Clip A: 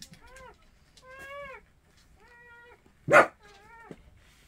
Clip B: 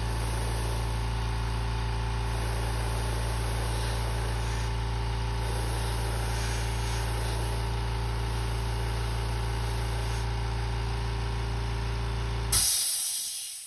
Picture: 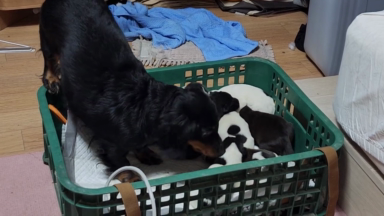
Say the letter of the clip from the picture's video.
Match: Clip A